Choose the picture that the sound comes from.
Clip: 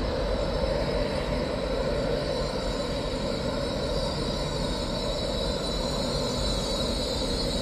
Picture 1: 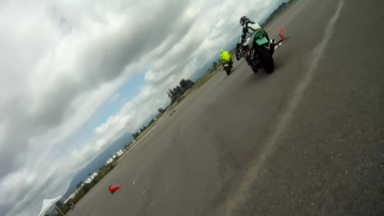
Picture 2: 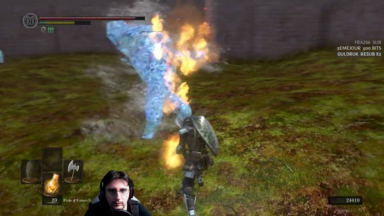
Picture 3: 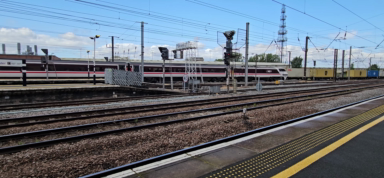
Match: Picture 3